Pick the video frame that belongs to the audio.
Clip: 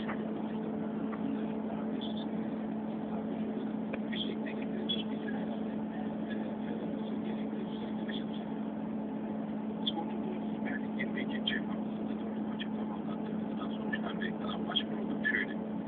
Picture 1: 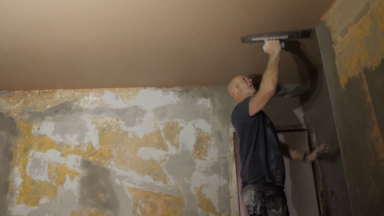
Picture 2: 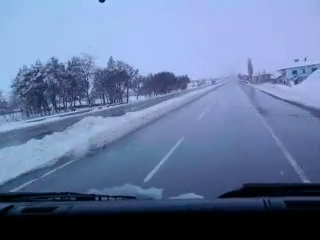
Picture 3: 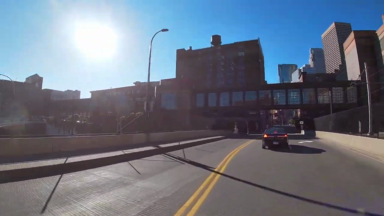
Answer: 2